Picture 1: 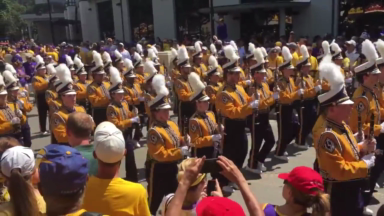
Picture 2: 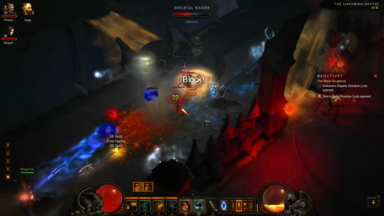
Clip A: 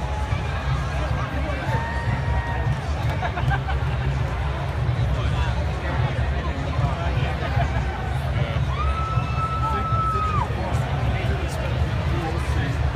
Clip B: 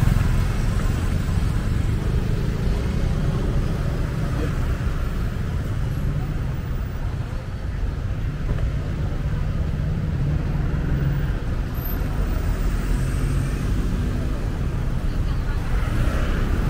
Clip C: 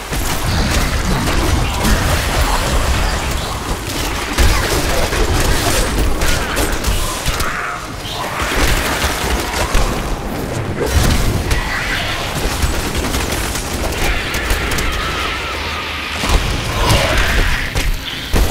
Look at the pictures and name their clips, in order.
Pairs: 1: A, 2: C